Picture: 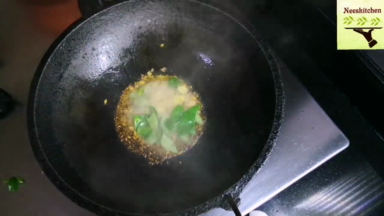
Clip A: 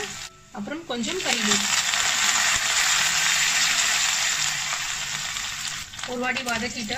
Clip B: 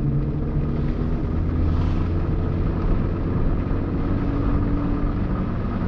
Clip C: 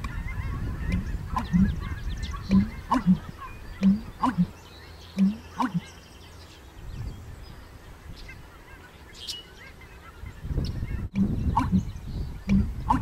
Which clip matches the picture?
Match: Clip A